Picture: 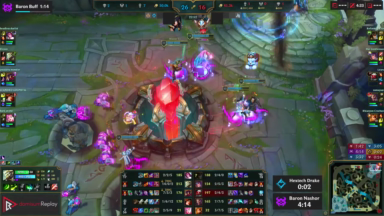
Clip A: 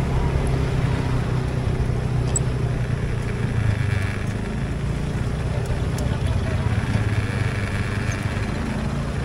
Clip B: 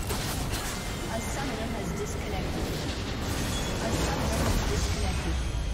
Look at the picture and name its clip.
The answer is B